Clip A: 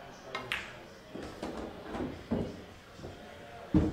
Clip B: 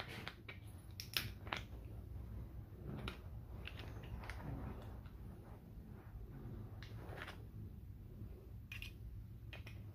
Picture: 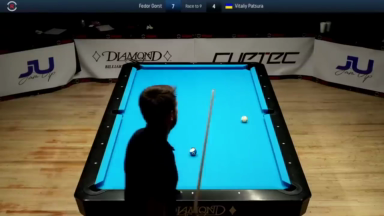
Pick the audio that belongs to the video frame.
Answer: A